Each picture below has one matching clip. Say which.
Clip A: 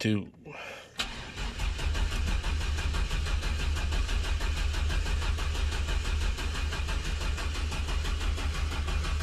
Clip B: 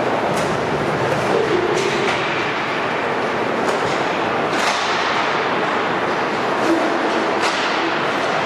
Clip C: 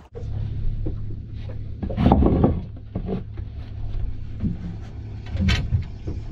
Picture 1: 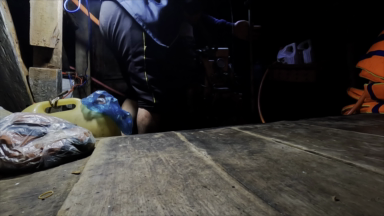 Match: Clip C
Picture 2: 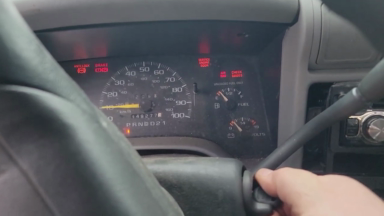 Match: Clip A